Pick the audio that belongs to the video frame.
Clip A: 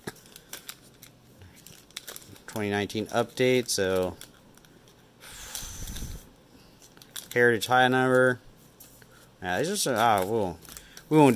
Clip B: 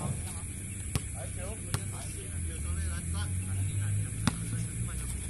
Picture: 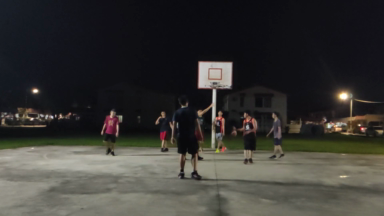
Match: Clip B